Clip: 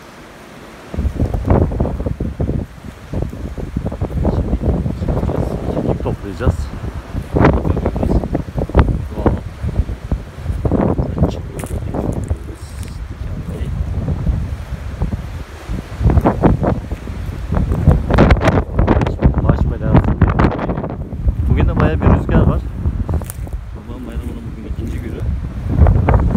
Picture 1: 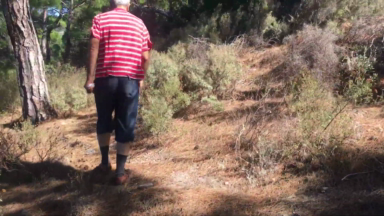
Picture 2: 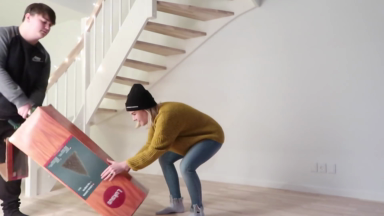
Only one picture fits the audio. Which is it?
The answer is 1